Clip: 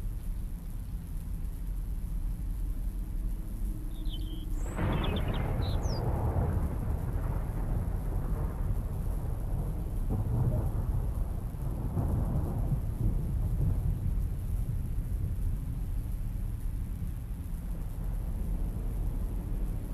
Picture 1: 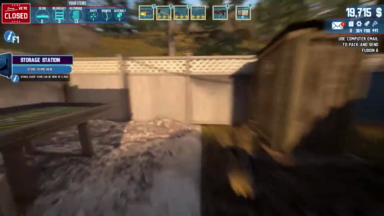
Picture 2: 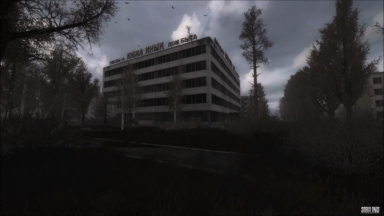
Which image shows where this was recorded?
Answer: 2